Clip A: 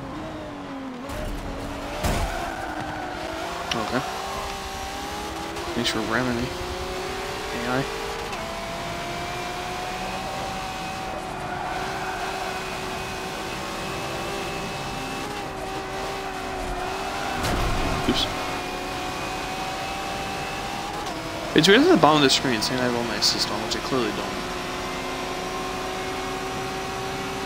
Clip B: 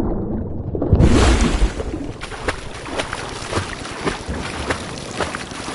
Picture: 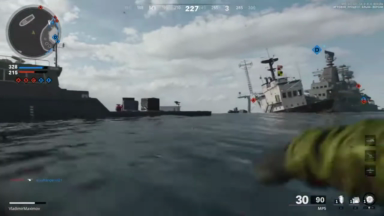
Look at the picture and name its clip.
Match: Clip B